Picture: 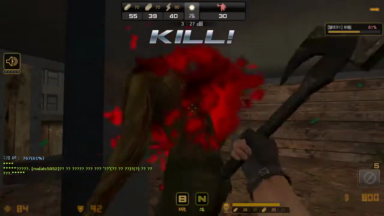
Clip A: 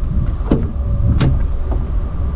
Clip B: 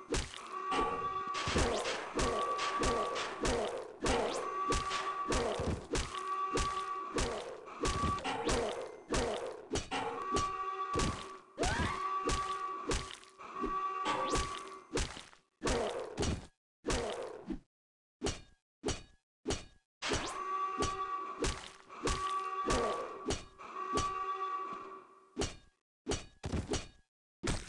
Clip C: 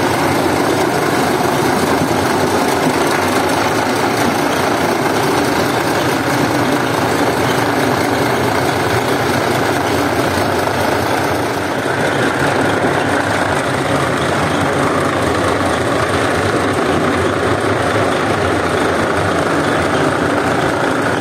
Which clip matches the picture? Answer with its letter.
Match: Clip B